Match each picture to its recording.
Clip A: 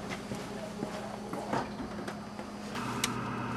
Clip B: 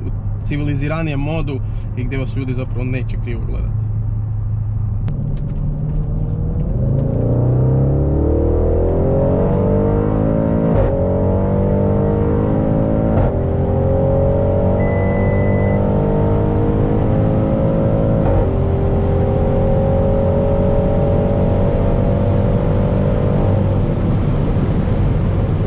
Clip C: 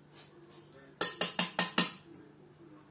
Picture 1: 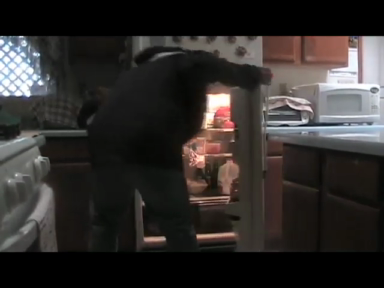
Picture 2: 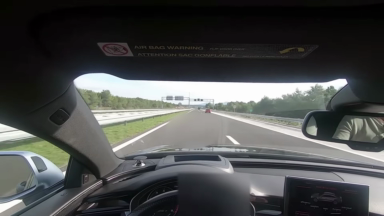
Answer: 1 A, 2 B